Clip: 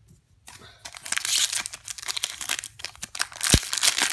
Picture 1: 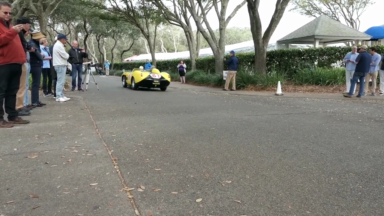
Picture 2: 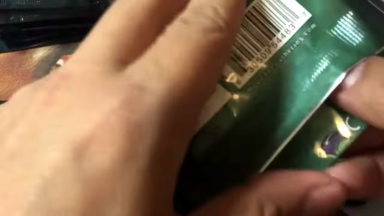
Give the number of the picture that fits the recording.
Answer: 2